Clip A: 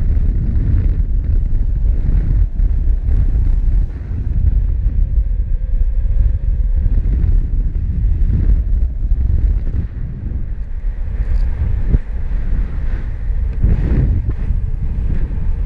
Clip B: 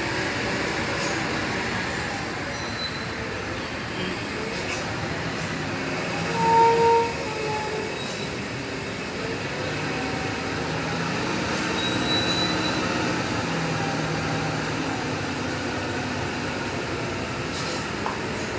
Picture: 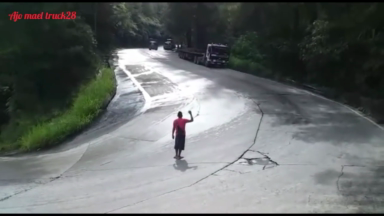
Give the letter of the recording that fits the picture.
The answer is B